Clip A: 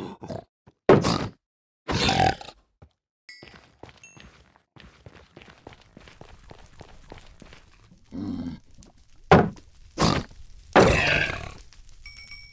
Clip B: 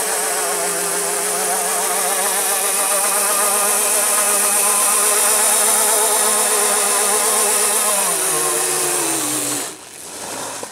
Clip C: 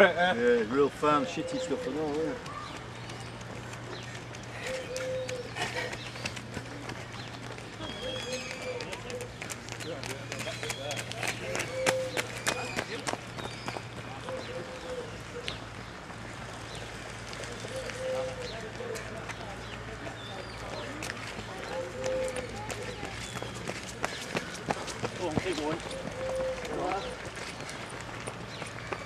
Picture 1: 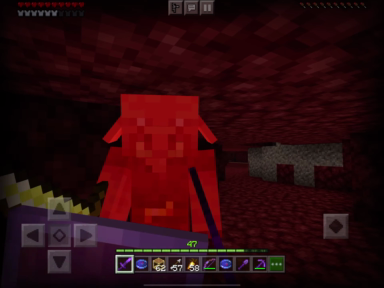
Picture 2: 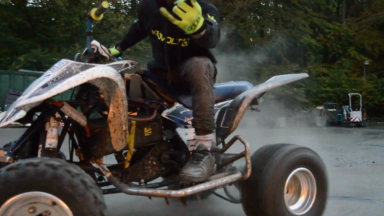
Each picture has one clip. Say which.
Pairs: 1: A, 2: B